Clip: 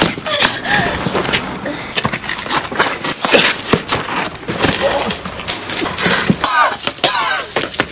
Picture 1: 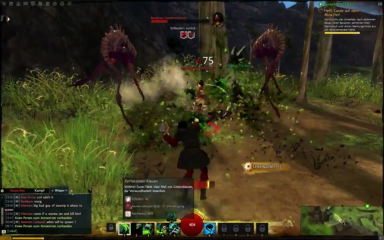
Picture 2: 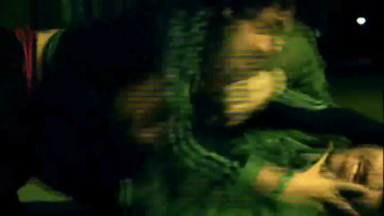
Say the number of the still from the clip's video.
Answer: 2